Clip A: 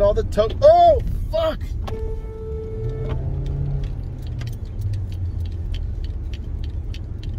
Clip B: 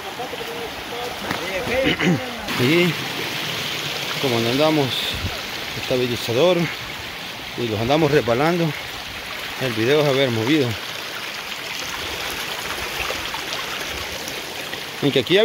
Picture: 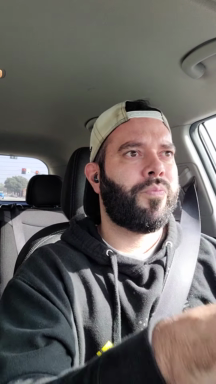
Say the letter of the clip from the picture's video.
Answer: A